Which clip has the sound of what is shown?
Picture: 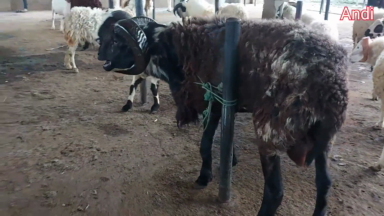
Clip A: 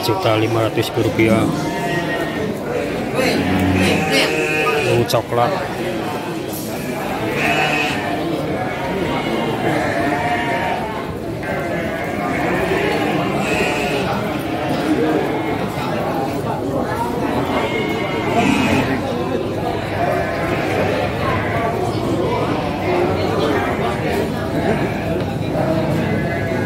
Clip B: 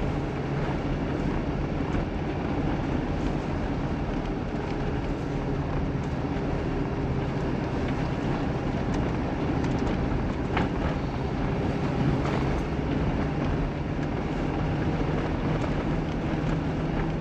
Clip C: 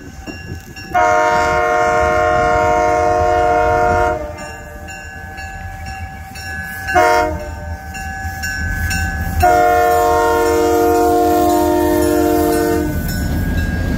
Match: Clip A